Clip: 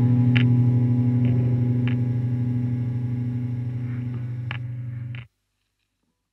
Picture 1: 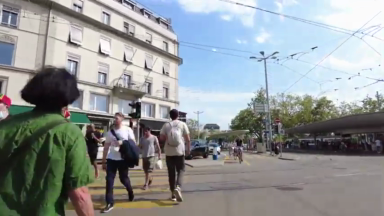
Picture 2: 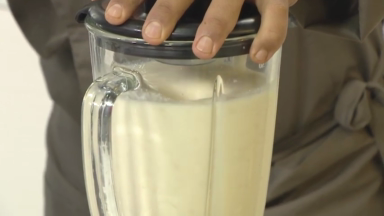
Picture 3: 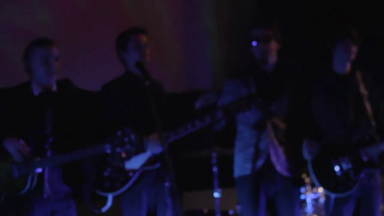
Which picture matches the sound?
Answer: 3